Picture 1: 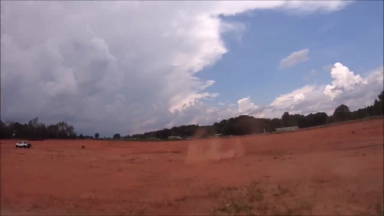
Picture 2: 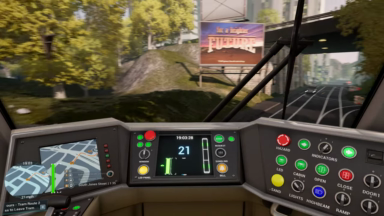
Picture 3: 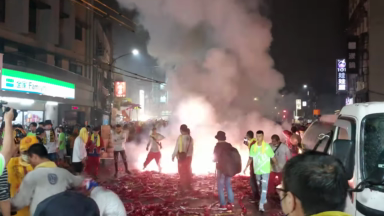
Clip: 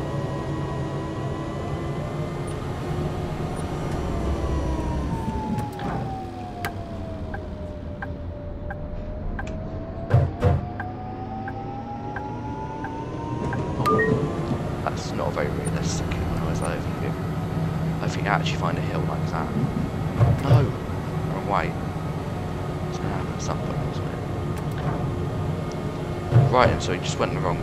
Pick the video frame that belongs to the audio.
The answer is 2